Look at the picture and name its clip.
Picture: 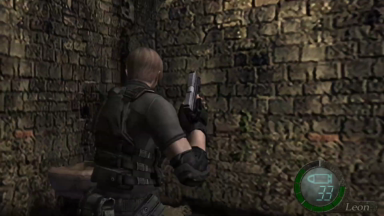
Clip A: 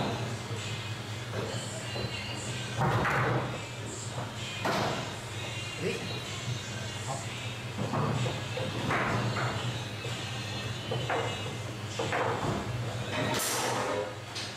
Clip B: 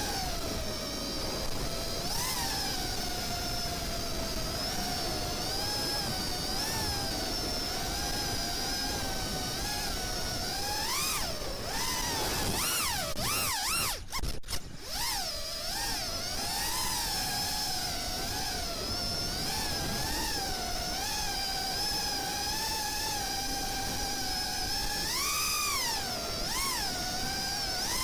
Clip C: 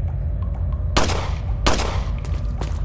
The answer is C